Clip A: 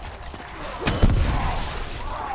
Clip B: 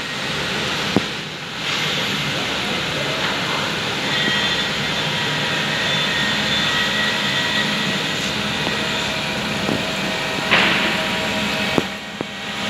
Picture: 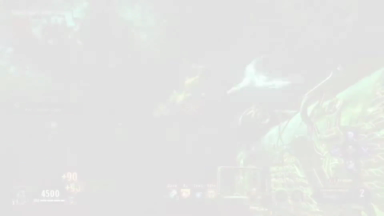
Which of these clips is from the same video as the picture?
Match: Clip A